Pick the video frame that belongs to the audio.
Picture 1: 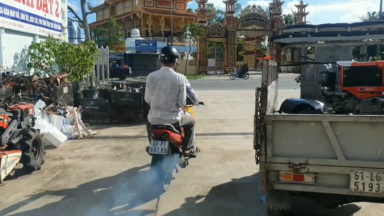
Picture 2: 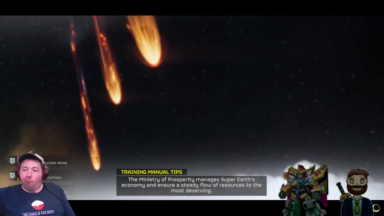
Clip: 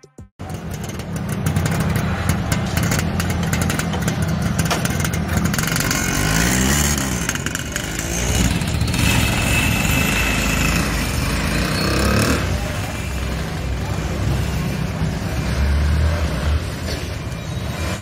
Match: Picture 1